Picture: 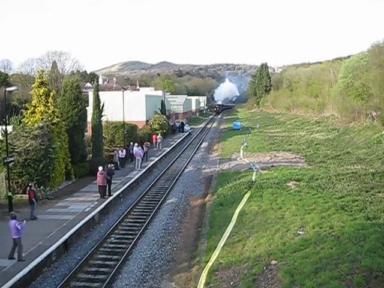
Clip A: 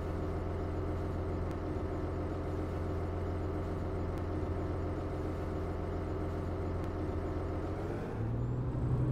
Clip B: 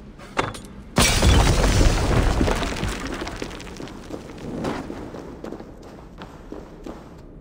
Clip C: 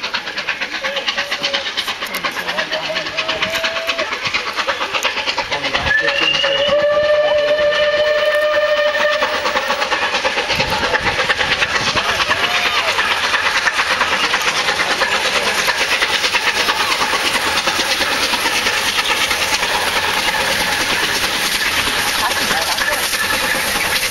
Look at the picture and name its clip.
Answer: C